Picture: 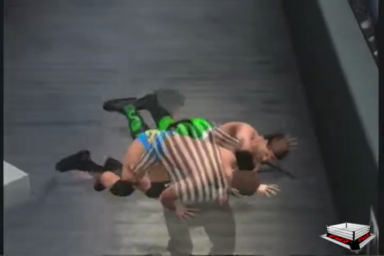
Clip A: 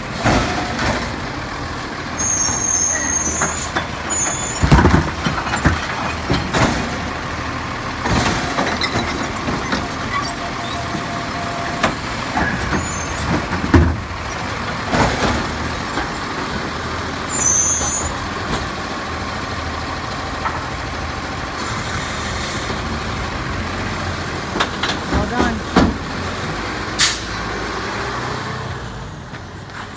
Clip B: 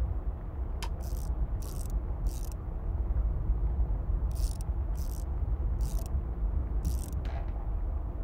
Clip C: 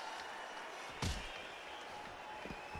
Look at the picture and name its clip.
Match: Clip C